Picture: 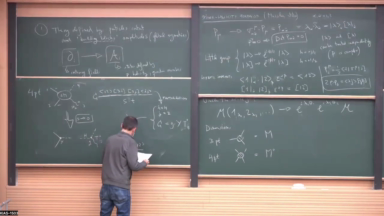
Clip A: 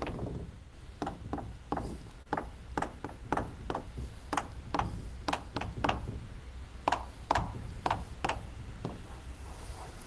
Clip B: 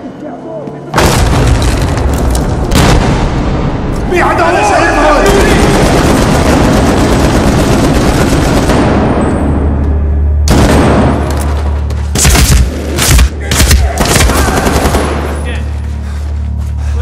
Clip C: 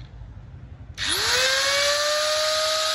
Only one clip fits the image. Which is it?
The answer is A